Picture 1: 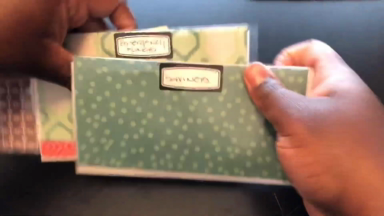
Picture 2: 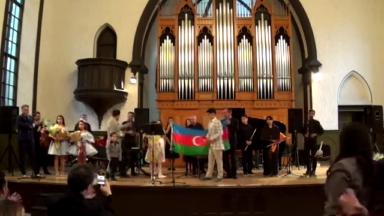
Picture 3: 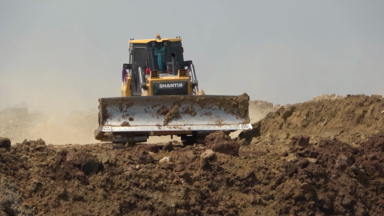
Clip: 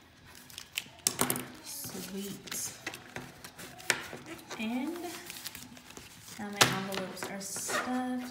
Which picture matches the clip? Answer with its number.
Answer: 1